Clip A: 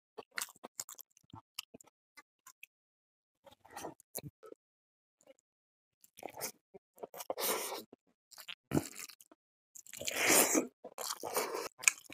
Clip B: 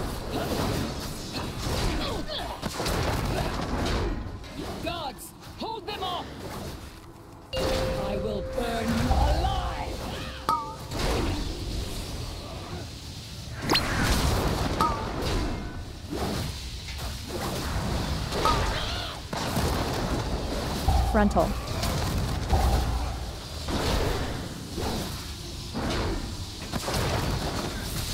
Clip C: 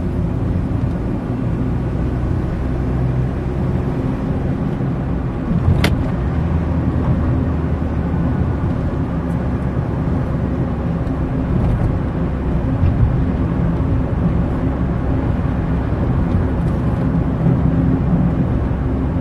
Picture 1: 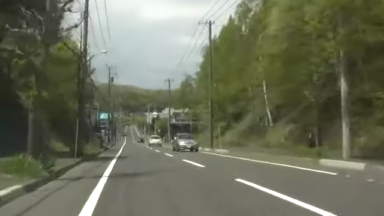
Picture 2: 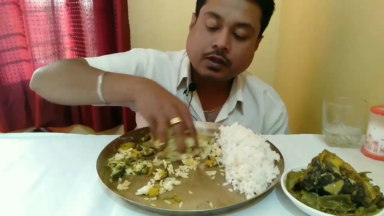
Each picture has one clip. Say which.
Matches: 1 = C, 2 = A